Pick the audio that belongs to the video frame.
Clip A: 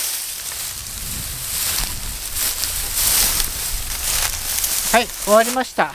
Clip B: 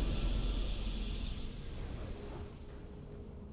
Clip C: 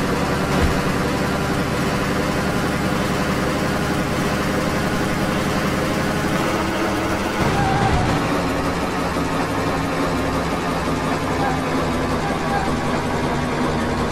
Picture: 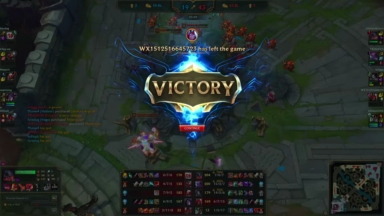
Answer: B